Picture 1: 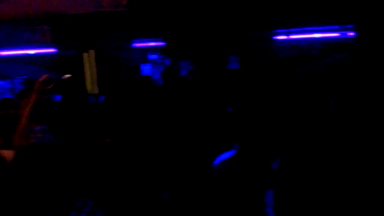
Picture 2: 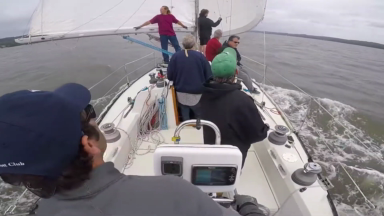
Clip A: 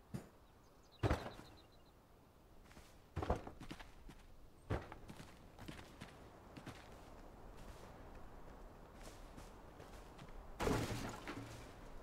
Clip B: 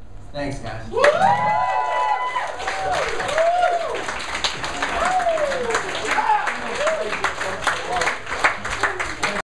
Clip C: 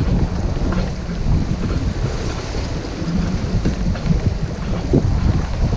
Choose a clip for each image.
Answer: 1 B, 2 C